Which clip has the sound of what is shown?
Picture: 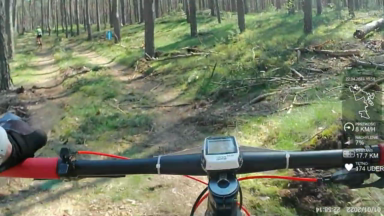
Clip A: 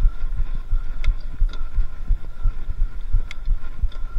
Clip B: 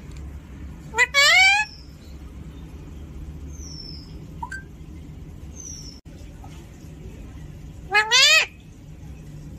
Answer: A